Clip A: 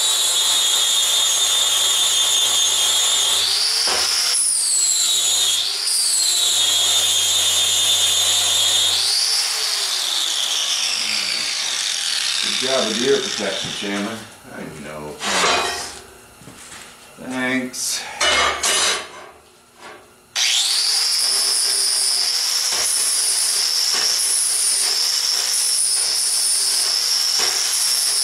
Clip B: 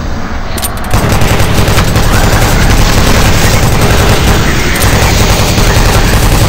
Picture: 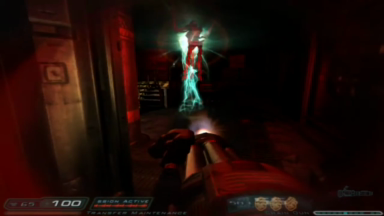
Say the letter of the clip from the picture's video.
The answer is B